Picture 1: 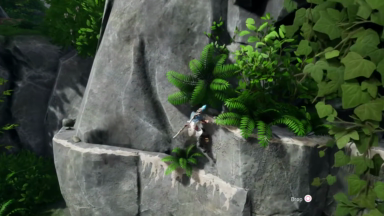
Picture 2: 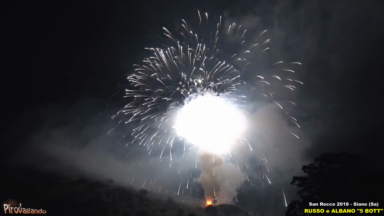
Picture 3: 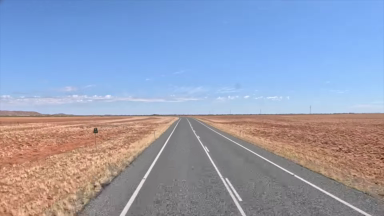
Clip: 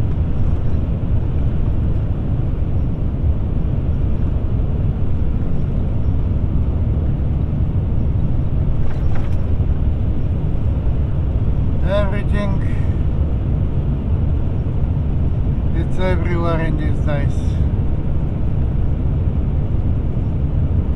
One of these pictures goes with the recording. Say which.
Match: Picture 3